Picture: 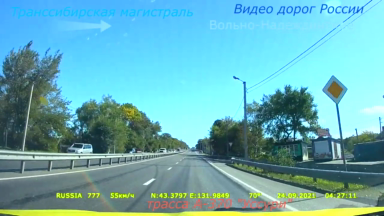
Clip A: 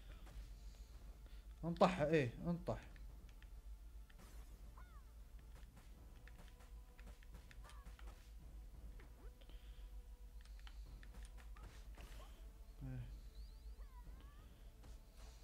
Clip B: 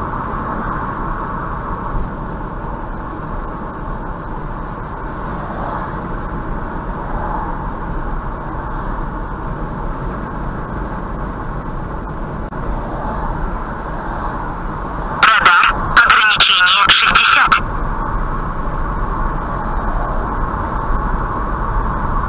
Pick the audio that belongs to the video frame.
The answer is B